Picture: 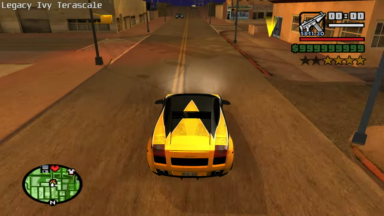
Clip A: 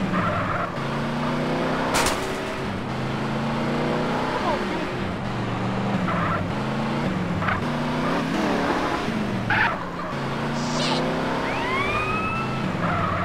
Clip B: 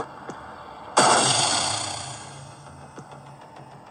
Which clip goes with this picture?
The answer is A